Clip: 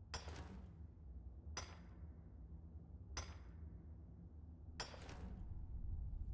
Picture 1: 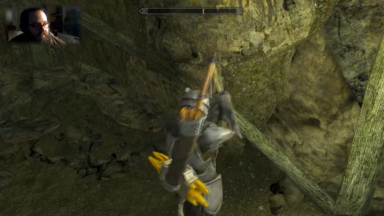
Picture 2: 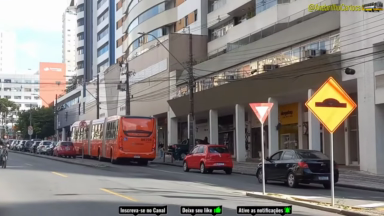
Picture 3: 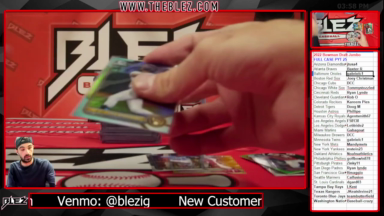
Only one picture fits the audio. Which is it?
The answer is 1